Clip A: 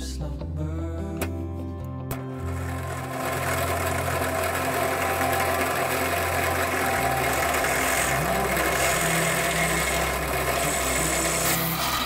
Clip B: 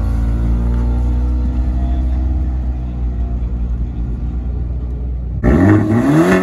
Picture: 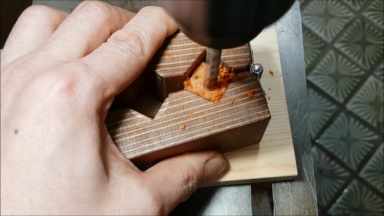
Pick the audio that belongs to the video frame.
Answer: A